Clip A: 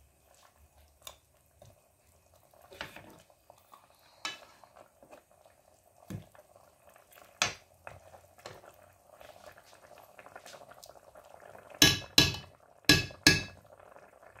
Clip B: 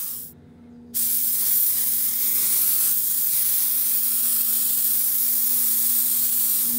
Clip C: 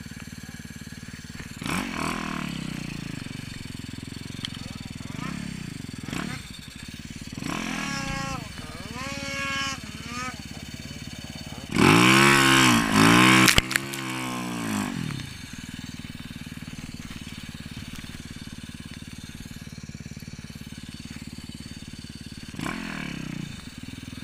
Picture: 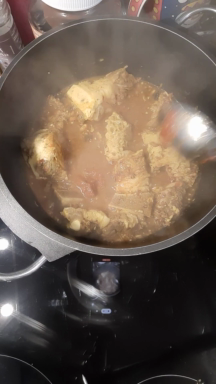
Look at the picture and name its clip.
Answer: A